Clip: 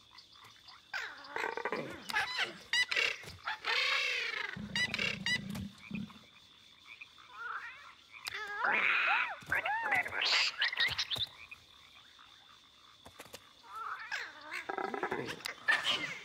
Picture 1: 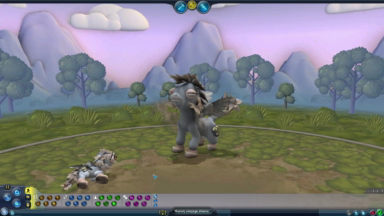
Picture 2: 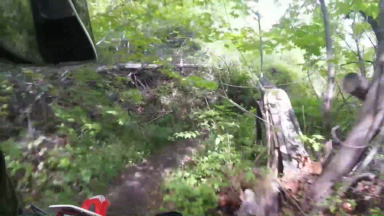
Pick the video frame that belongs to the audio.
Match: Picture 1